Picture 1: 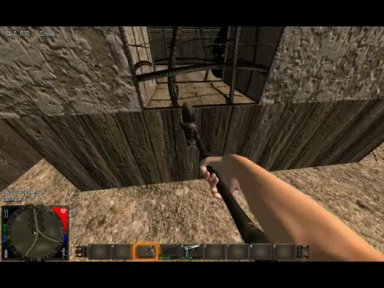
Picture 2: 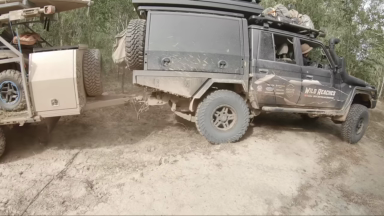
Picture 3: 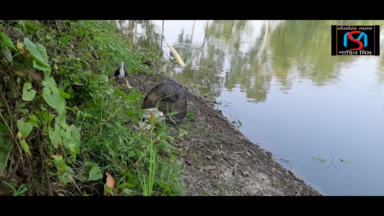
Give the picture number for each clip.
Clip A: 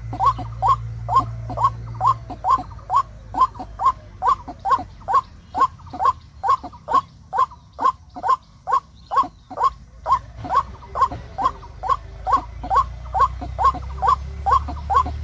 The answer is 3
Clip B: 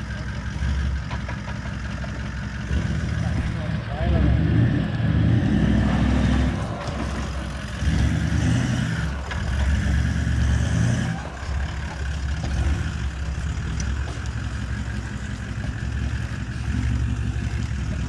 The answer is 2